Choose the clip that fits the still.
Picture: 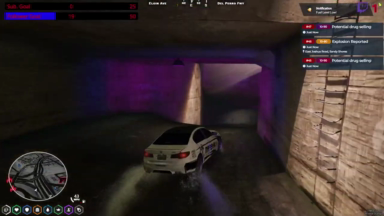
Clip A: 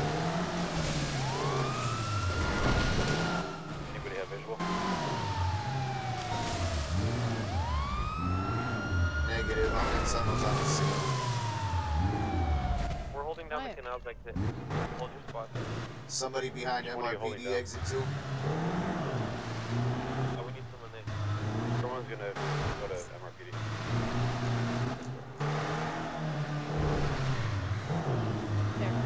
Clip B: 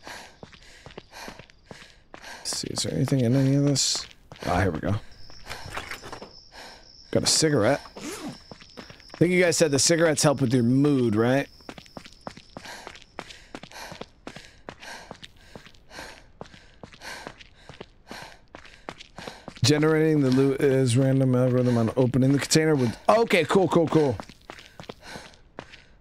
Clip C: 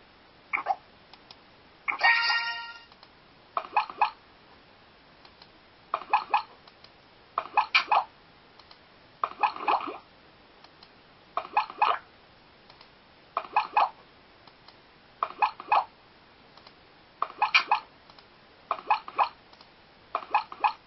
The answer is A